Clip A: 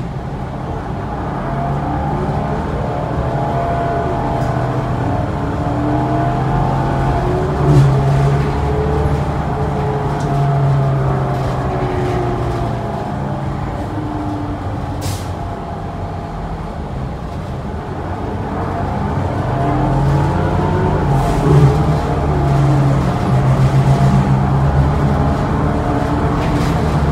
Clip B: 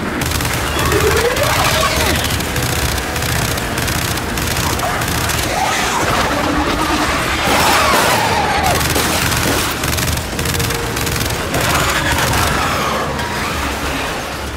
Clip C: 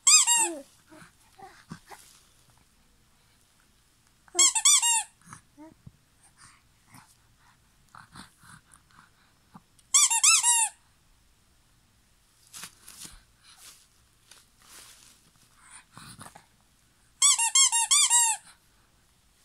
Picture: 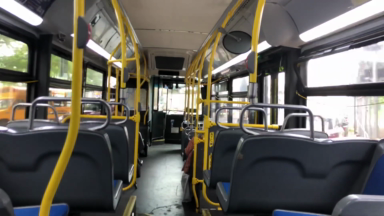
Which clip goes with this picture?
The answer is A